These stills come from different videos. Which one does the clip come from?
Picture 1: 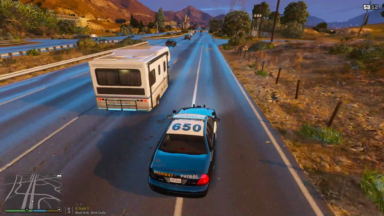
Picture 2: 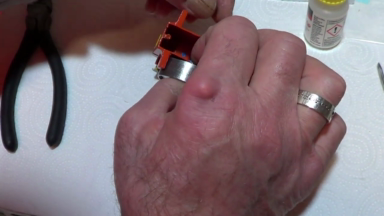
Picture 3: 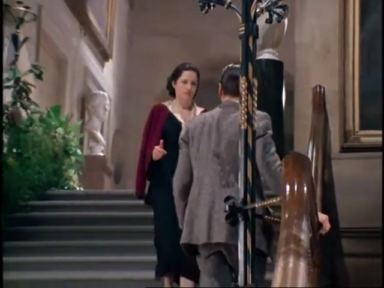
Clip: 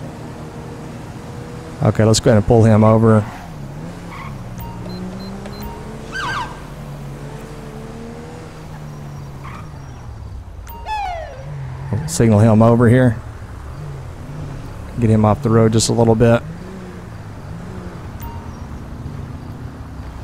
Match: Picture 1